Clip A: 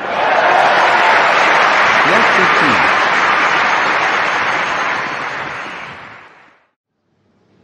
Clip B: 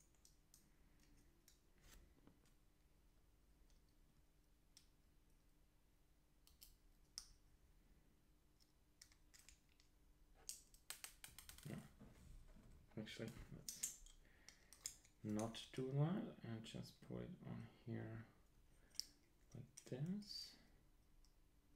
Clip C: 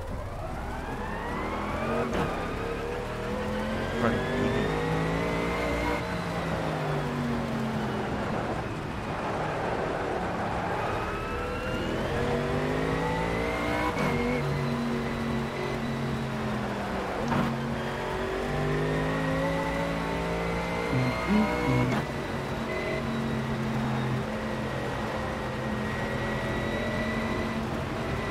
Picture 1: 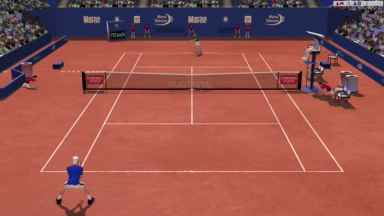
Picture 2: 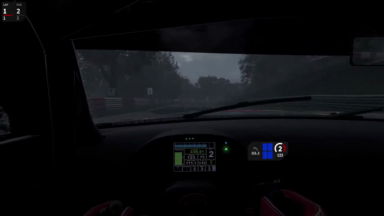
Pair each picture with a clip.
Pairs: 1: A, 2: C